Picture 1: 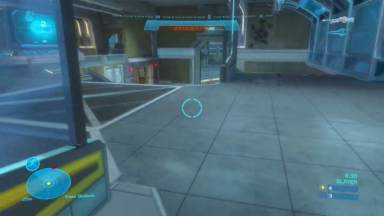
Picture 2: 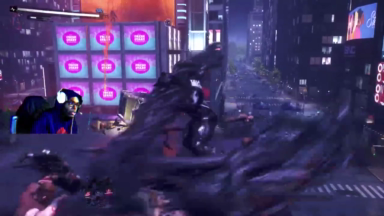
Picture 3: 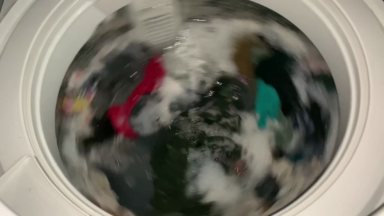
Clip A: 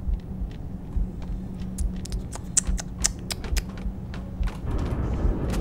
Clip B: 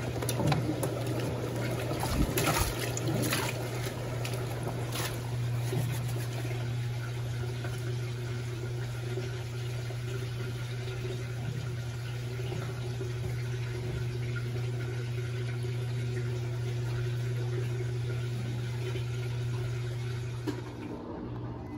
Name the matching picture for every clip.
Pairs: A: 1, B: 3